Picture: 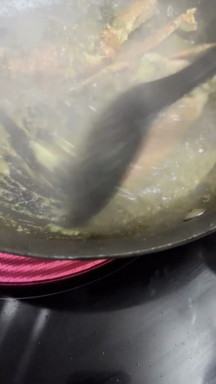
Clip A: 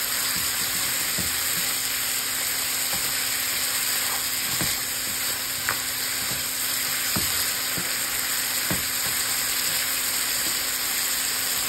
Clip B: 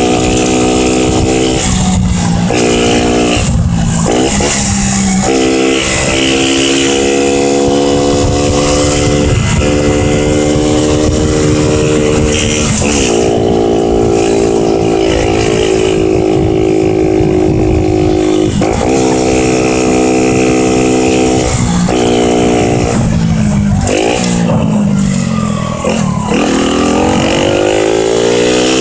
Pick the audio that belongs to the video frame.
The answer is A